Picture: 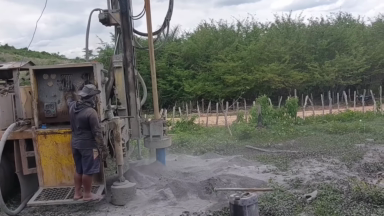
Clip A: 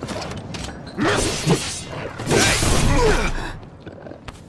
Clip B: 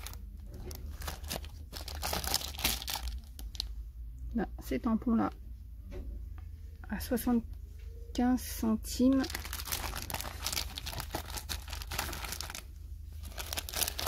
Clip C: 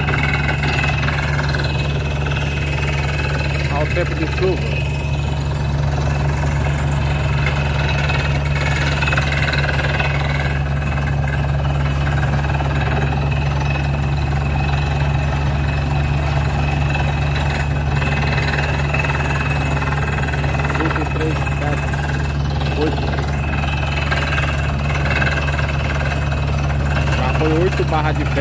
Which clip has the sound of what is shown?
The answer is C